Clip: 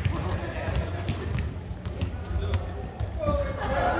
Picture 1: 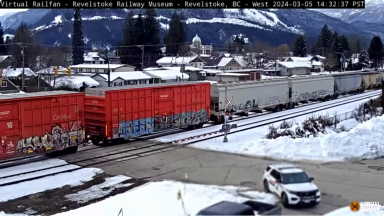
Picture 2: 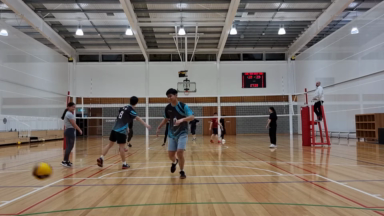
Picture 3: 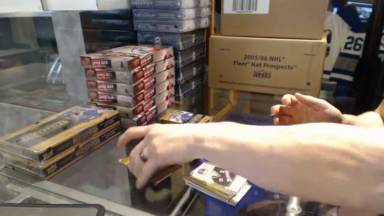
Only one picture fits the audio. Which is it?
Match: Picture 2